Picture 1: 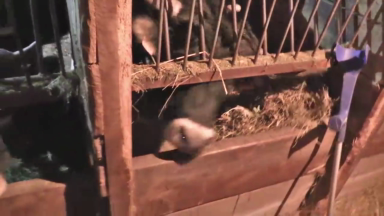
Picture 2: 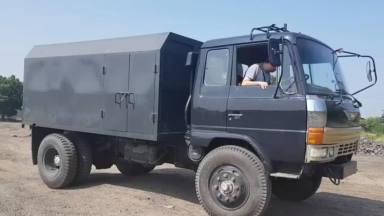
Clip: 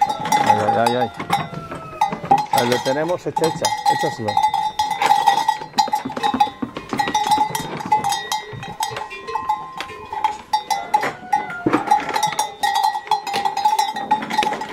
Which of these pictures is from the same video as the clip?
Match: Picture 1